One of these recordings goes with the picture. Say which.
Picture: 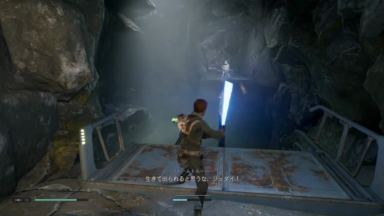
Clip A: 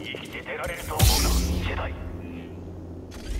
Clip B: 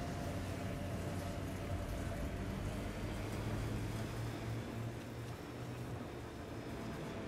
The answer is A